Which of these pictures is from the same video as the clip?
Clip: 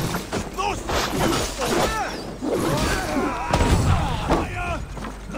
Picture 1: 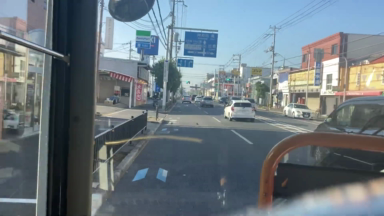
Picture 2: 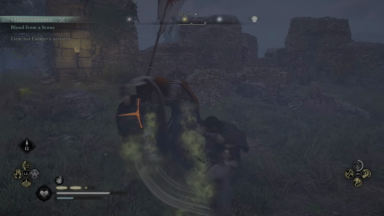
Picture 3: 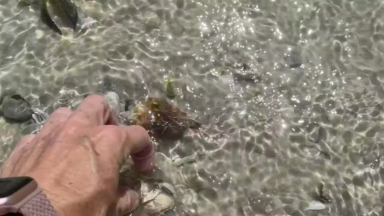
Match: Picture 2